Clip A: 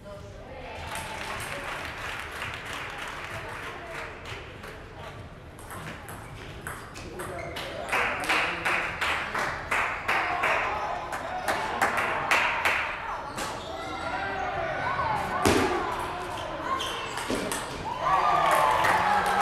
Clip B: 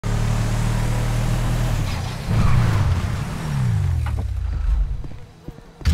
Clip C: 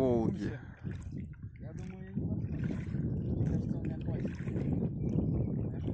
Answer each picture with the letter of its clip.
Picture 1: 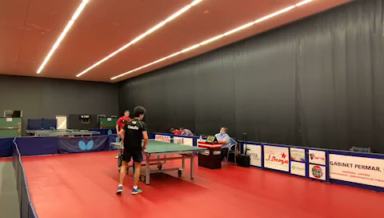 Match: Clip A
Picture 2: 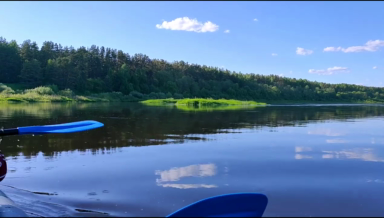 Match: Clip C